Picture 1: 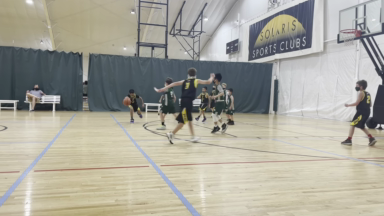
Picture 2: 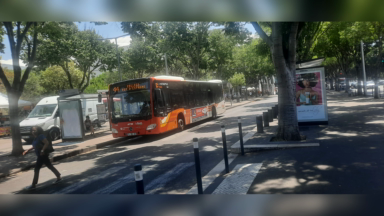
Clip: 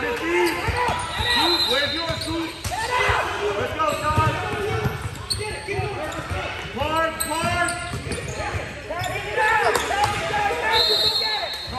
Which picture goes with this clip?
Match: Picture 1